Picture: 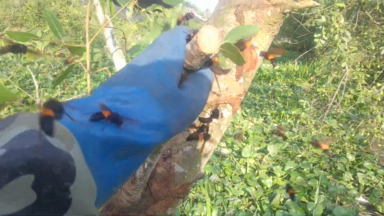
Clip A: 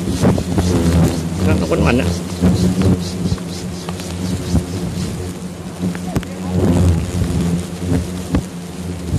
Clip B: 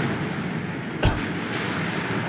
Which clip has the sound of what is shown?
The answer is A